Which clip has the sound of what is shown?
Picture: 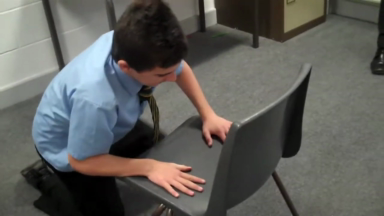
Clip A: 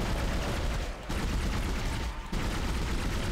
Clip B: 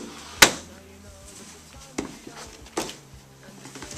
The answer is B